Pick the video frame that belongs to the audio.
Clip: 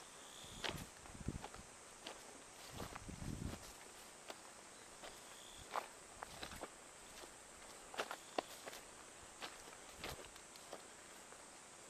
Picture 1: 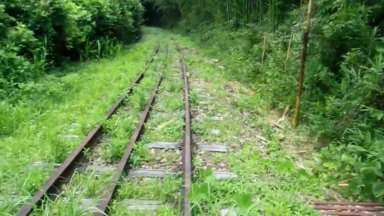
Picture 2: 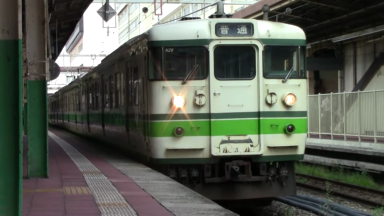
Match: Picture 1